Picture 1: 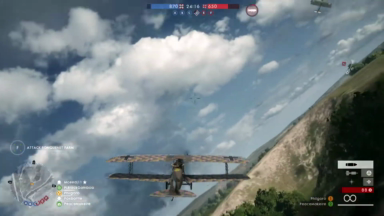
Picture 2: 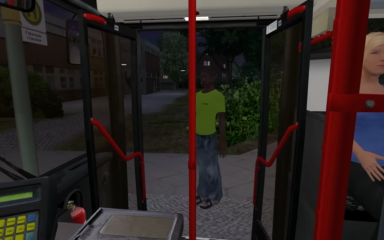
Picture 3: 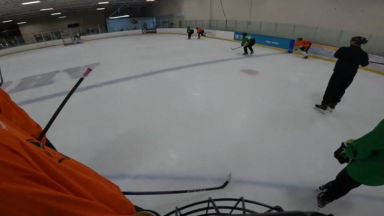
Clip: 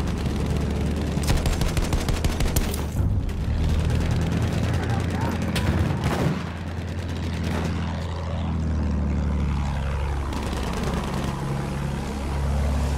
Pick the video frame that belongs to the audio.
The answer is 1